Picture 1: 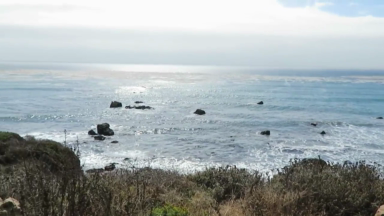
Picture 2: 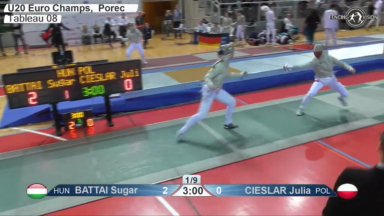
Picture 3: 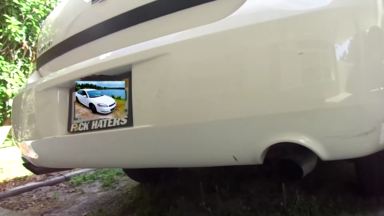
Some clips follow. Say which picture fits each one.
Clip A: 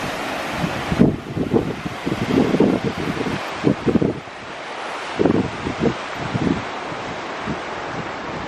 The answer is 1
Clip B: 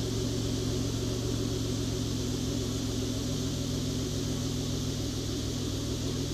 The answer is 3